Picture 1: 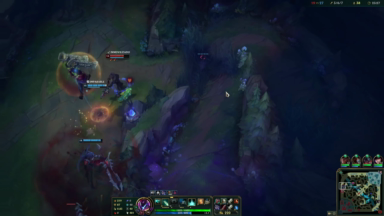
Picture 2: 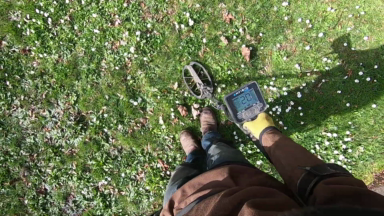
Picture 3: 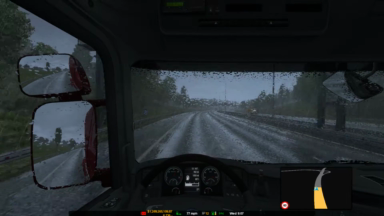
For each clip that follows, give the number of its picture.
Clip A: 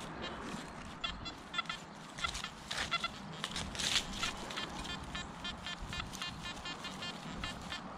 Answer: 2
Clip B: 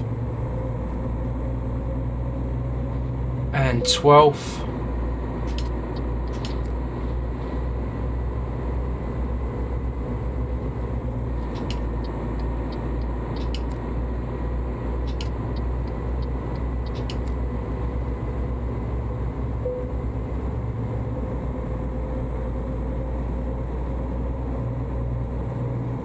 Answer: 3